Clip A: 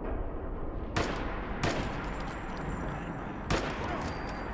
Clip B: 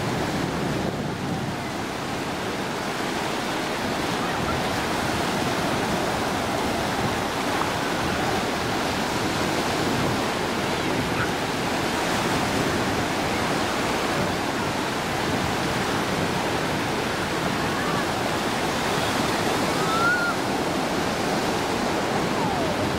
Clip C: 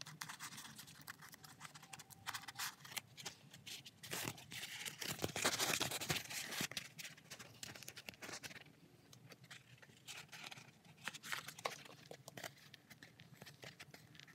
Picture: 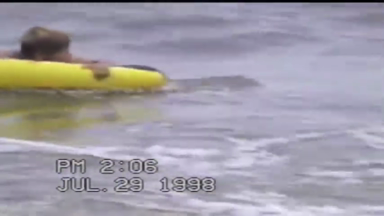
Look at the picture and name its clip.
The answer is B